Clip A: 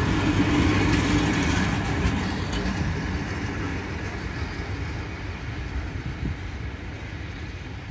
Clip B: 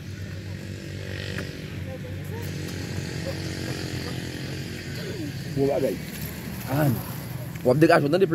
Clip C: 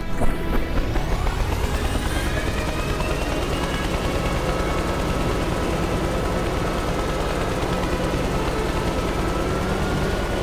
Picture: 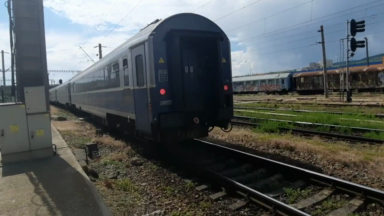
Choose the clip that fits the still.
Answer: A